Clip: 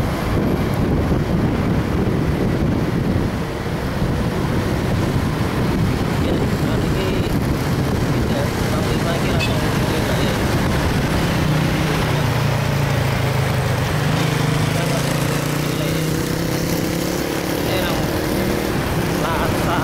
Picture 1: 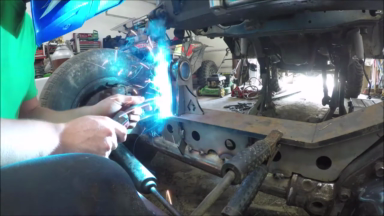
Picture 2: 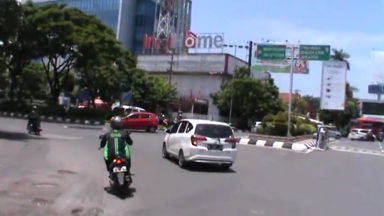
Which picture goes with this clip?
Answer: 2